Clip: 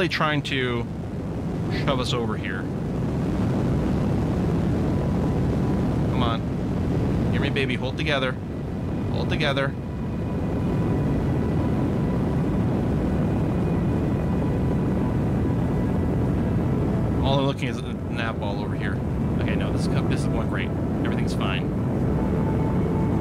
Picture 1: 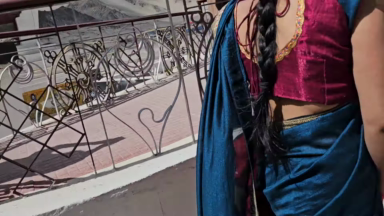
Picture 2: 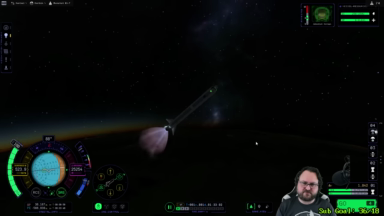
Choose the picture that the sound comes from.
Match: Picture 2